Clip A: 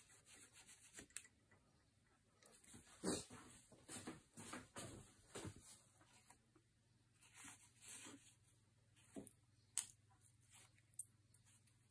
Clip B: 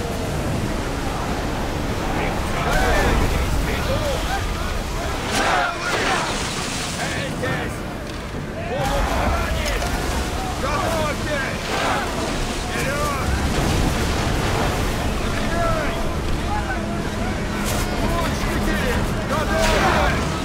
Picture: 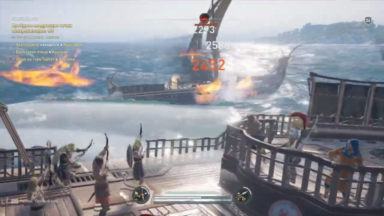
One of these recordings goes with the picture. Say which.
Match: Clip B